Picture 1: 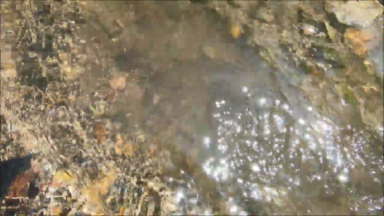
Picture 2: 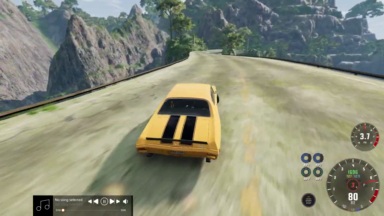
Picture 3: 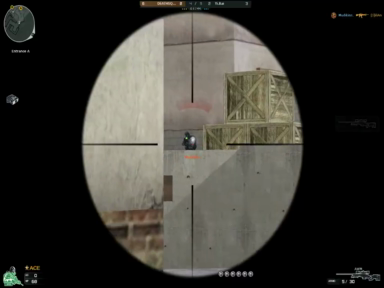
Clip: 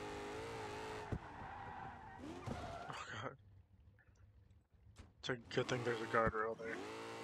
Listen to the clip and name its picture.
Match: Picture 2